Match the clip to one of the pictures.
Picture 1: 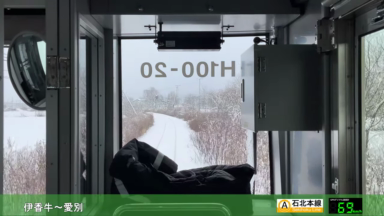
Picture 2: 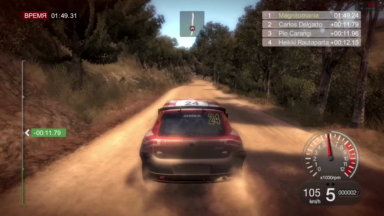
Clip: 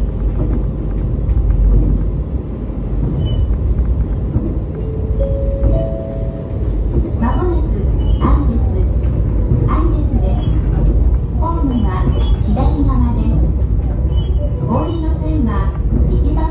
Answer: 1